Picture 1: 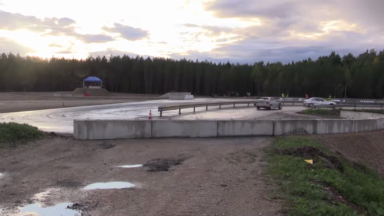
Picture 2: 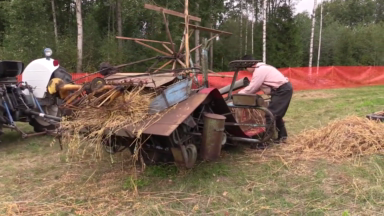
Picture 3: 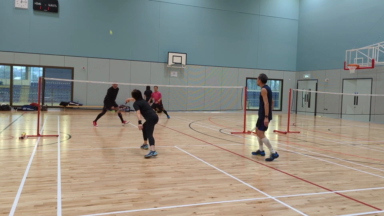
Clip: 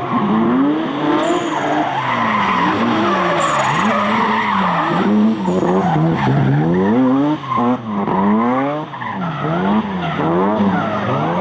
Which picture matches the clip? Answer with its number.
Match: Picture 1